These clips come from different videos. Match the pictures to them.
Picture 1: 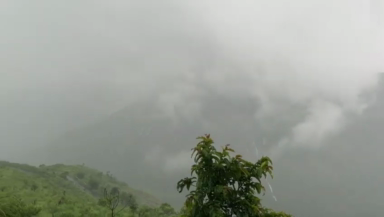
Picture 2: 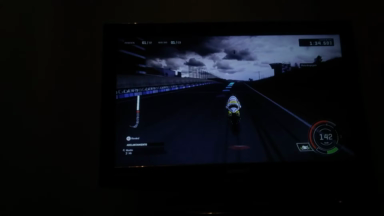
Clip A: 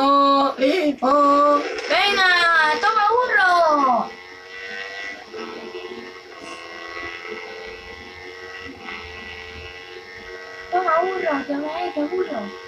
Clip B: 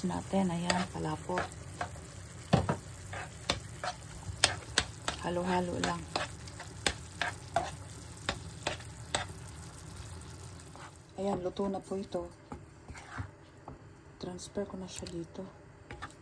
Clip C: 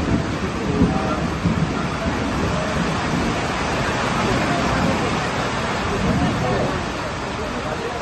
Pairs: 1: C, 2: A